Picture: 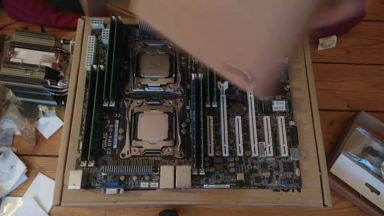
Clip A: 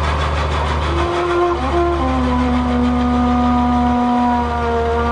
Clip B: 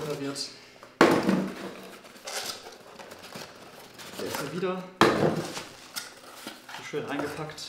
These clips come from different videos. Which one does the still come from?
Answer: B